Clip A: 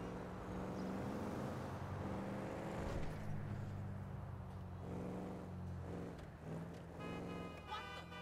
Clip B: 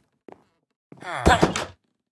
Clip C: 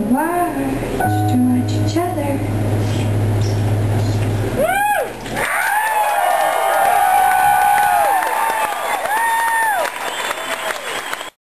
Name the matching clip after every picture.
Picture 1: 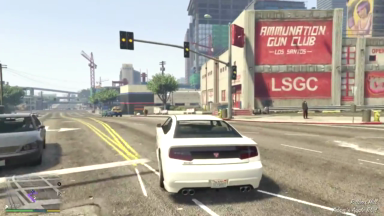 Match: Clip A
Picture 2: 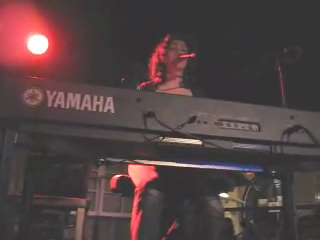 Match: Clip C